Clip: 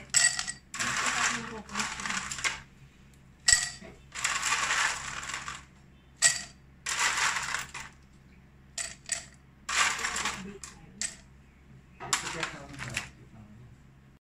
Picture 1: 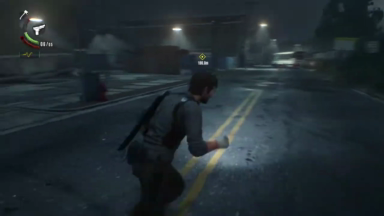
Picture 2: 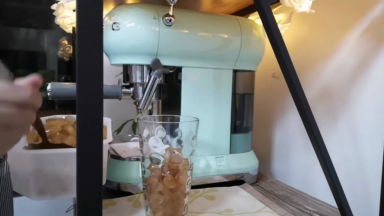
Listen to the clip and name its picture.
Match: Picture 2